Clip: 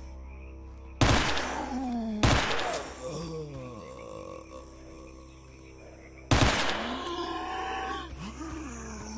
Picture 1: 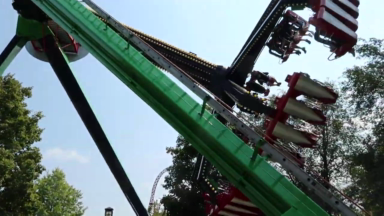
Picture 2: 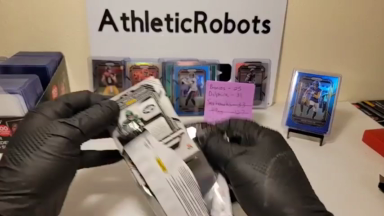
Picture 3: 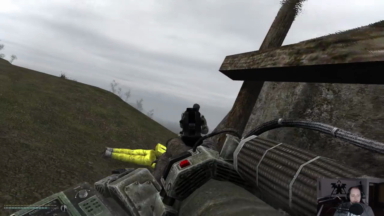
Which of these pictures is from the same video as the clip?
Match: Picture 3